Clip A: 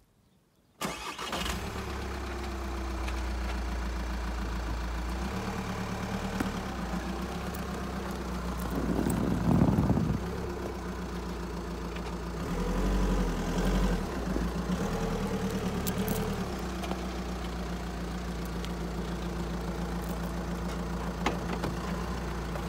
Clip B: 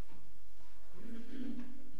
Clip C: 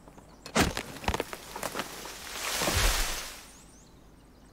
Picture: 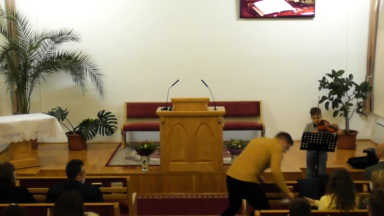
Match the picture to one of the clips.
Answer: B